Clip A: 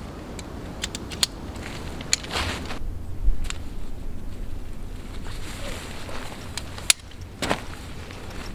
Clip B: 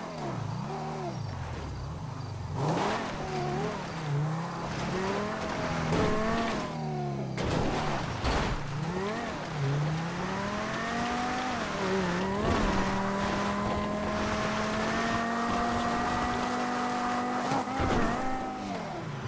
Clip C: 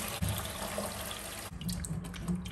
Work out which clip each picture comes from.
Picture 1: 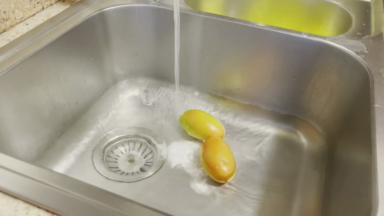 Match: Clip C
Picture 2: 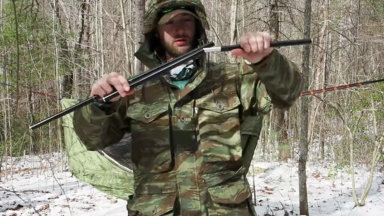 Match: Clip A